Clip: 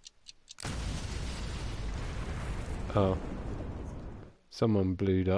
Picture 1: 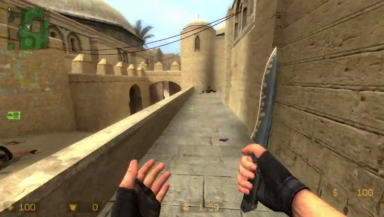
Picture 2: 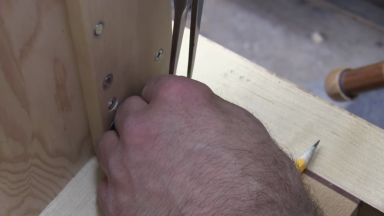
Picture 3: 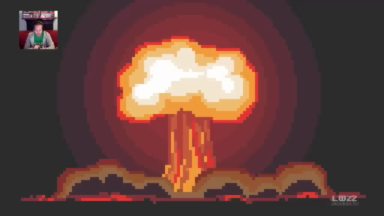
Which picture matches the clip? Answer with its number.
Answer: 3